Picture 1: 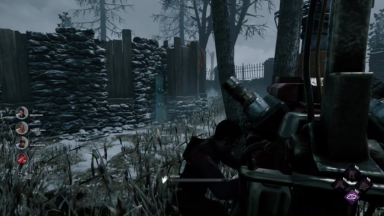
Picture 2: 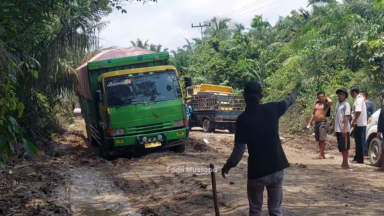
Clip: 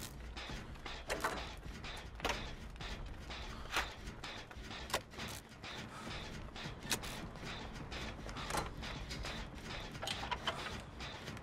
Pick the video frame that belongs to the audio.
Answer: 1